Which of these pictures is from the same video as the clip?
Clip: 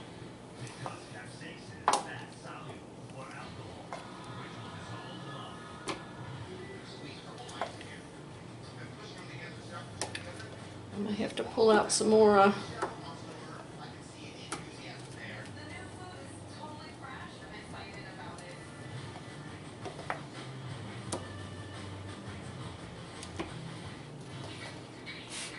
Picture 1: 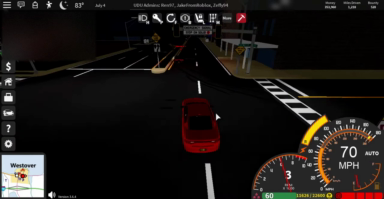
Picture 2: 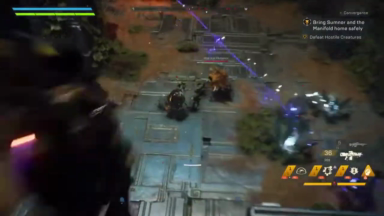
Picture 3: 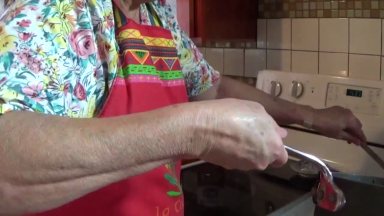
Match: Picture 3